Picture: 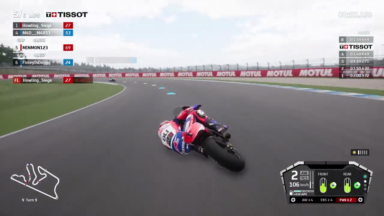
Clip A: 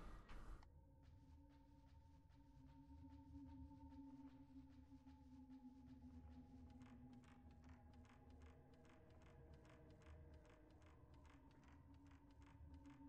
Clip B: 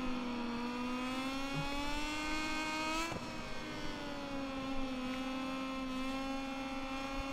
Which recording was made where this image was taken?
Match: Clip B